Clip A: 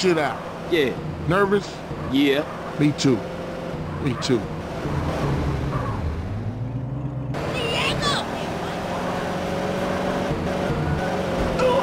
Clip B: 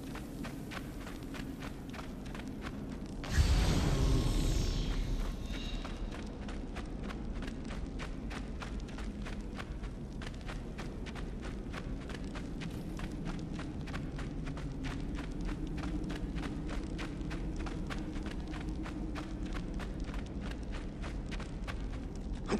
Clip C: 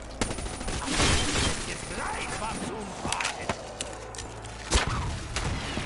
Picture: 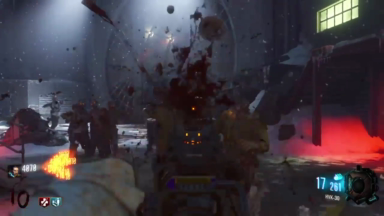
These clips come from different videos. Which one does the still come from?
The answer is C